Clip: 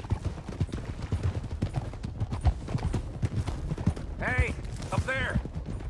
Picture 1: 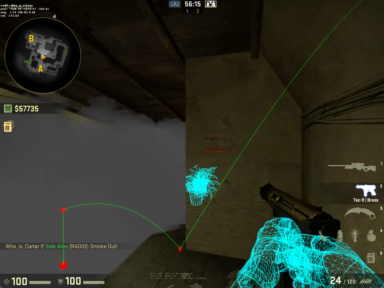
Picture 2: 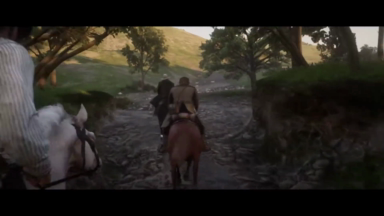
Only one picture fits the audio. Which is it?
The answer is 2